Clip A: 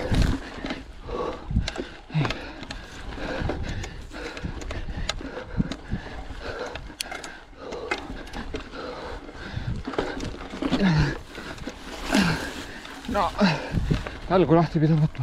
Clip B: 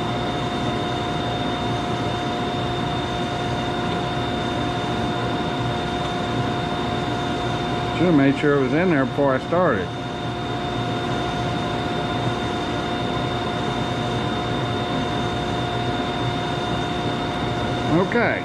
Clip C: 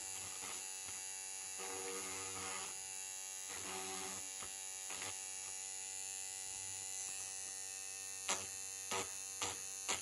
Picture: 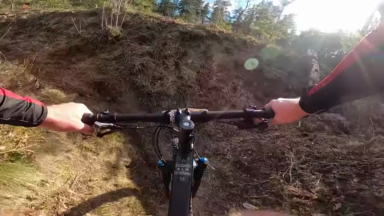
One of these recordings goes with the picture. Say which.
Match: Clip A